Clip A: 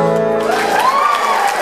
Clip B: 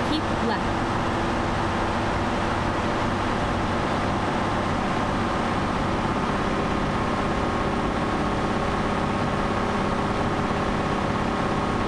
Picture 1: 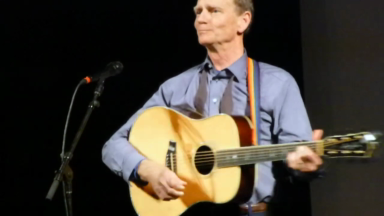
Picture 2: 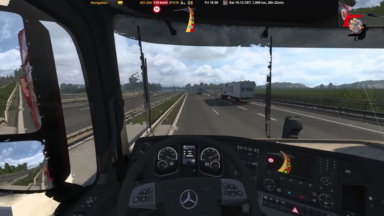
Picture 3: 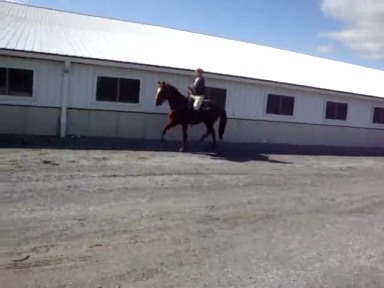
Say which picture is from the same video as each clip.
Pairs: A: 1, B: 2